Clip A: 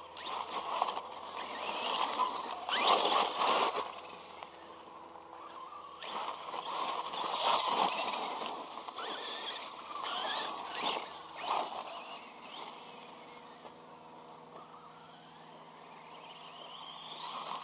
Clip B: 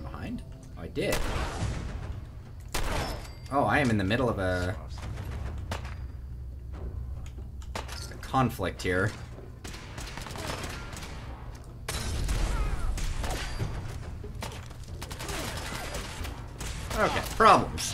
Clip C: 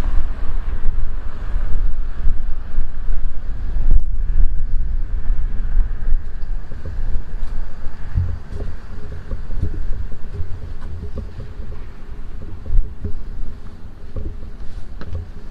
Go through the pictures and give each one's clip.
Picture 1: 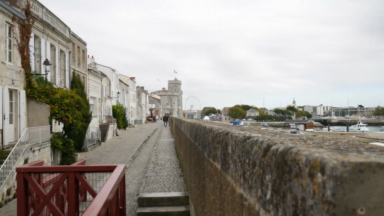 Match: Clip C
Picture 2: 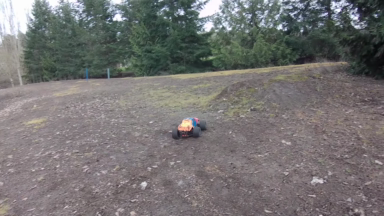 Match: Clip A